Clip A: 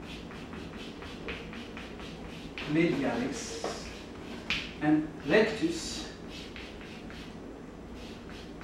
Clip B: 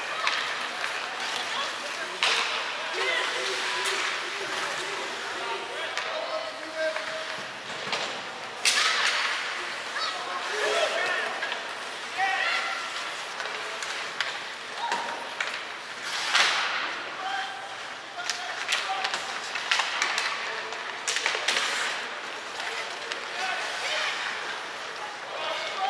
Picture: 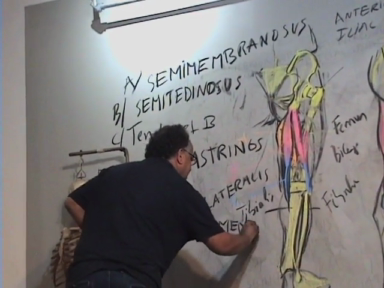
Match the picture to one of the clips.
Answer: A